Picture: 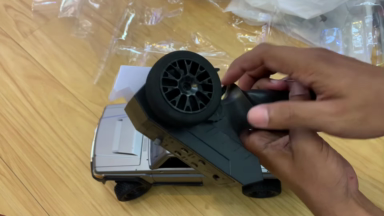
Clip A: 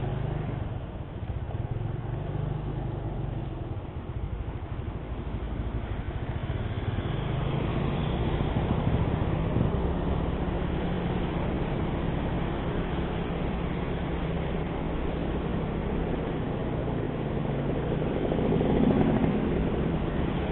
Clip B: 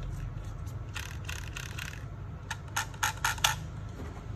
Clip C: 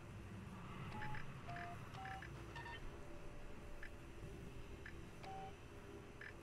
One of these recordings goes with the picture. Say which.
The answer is B